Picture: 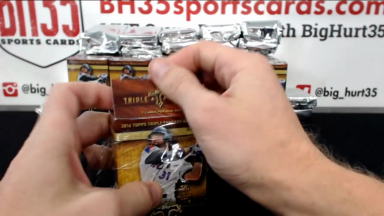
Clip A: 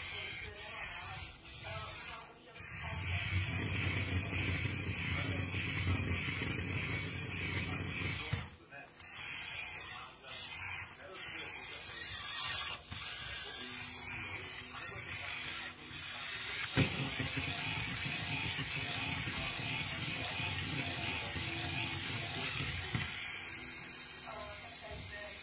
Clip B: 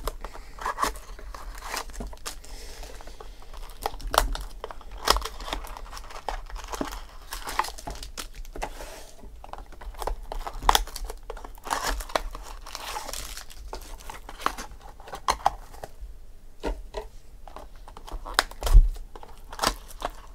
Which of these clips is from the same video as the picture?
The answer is B